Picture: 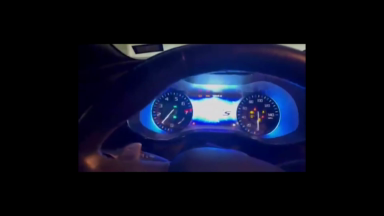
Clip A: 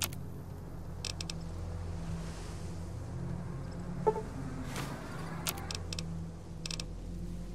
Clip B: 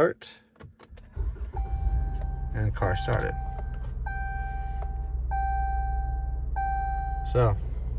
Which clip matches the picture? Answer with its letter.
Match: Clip B